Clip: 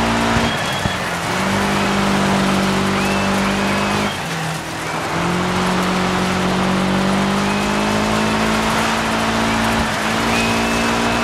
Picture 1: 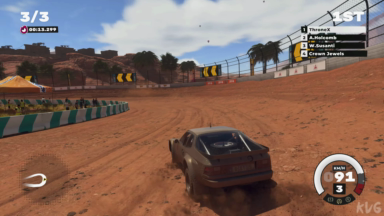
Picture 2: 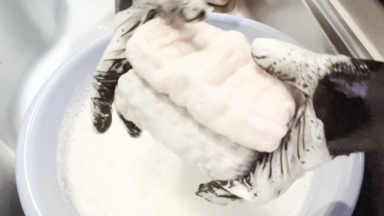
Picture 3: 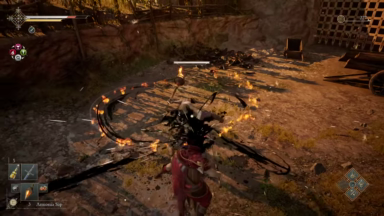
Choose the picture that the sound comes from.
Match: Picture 1